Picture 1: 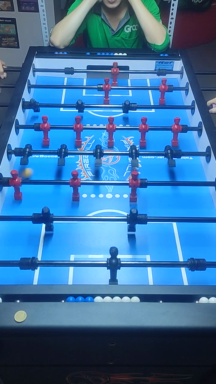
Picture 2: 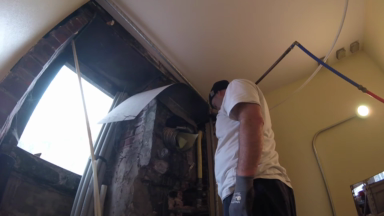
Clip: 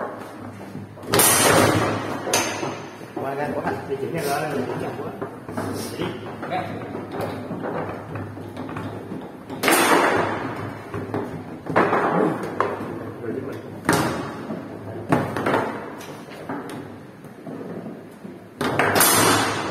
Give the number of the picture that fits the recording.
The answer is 1